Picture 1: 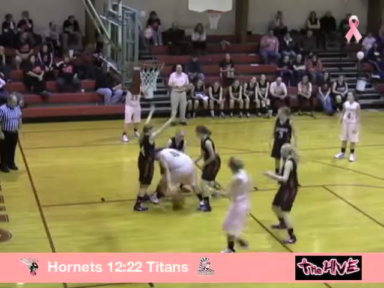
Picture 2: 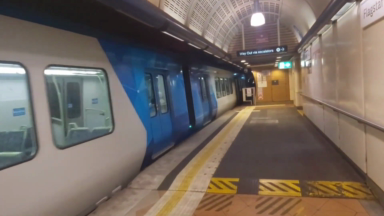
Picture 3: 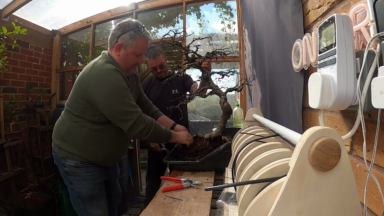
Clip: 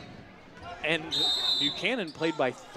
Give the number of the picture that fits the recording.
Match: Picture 1